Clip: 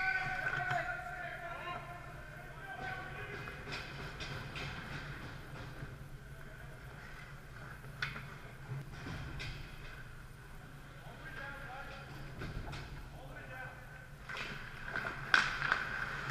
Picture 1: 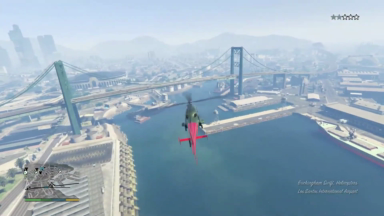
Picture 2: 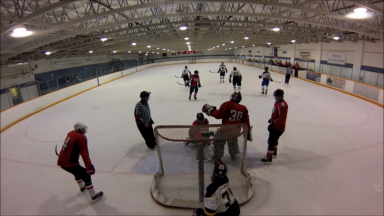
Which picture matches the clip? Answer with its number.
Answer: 2